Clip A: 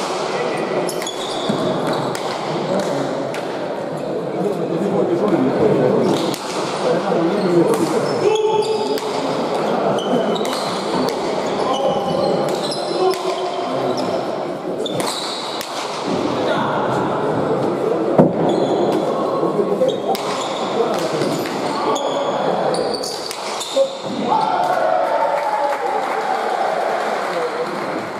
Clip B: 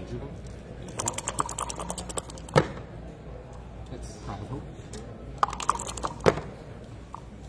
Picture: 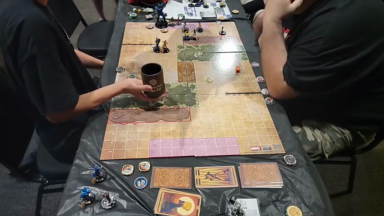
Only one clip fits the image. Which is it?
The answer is B